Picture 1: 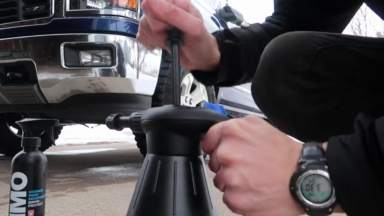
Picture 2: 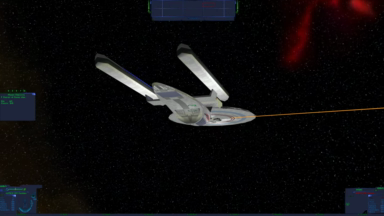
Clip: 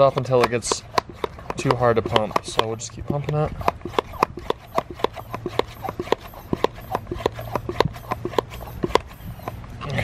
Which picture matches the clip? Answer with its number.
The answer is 1